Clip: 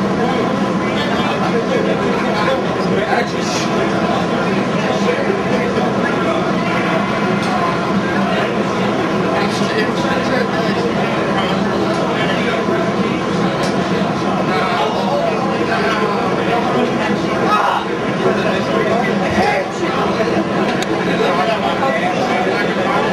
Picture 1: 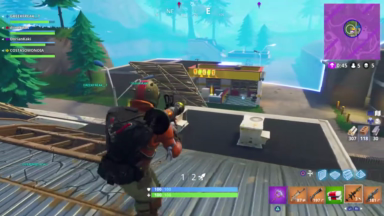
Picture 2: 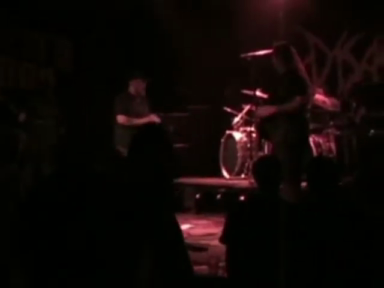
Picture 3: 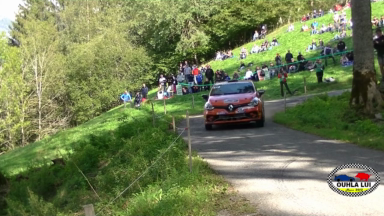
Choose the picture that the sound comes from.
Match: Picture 2